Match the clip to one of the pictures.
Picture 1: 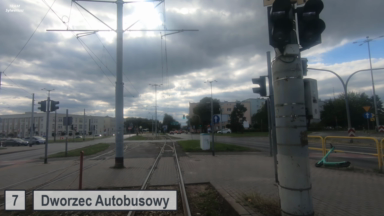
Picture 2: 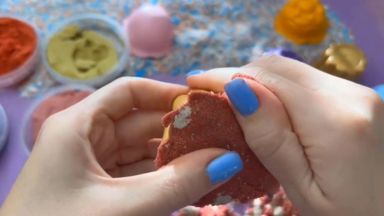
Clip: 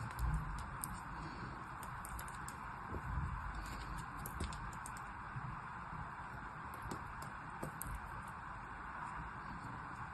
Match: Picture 2